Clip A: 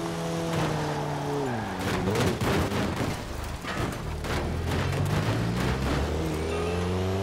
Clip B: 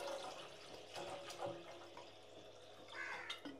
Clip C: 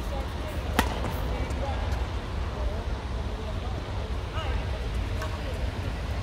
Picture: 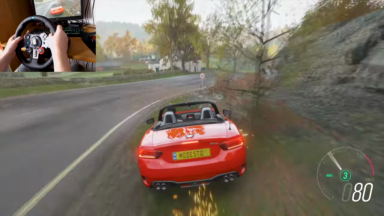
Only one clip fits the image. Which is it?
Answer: A